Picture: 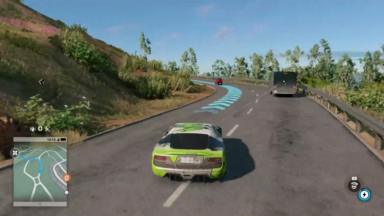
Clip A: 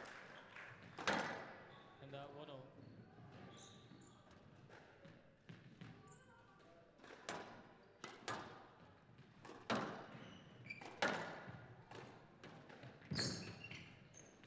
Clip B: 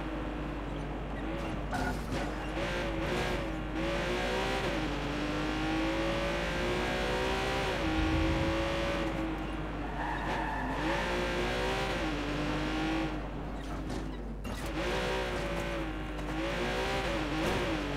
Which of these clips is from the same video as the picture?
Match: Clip B